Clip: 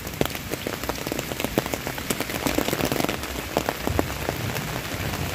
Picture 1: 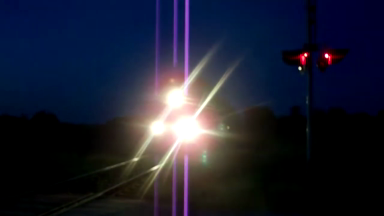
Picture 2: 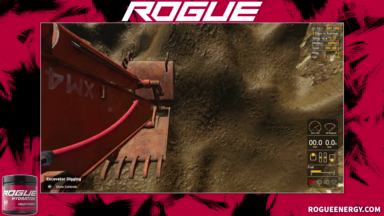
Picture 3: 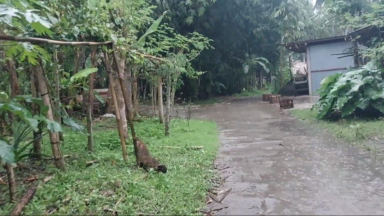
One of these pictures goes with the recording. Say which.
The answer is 3